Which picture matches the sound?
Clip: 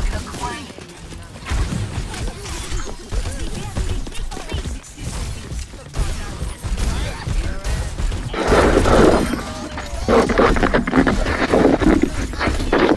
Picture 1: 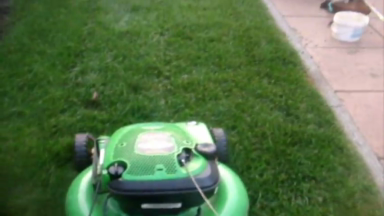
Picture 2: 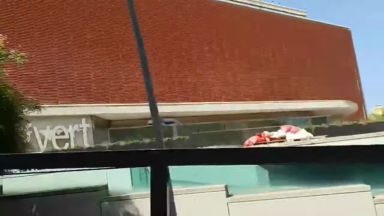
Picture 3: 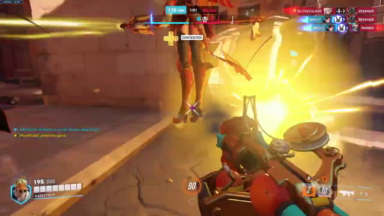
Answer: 3